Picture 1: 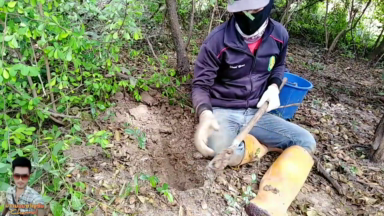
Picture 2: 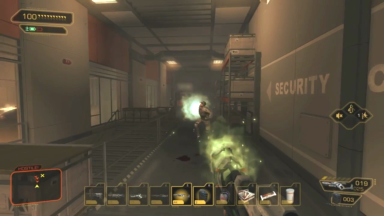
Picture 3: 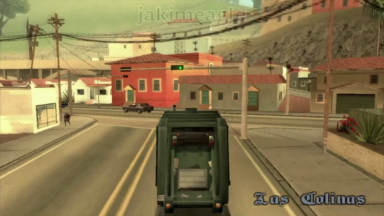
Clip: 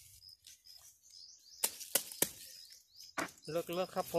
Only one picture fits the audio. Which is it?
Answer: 1